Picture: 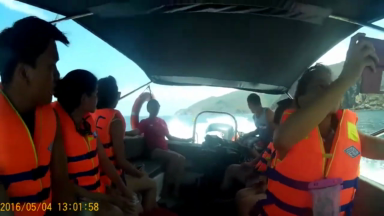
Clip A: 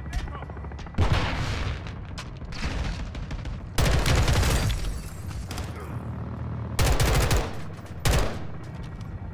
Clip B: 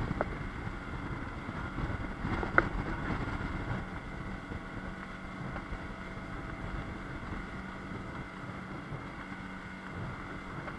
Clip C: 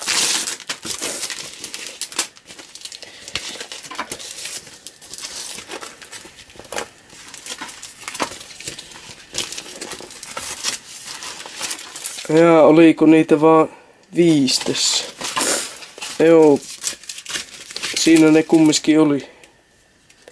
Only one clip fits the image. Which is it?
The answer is B